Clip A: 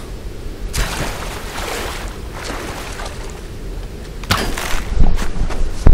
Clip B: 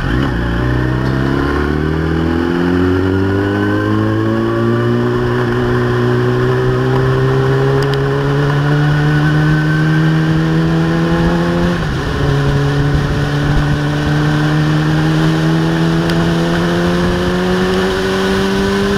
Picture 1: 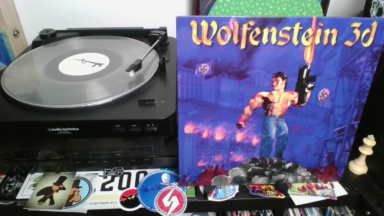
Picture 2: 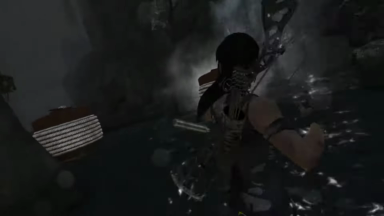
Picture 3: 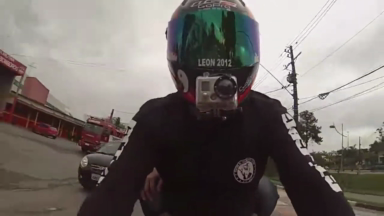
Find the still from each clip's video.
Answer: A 2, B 3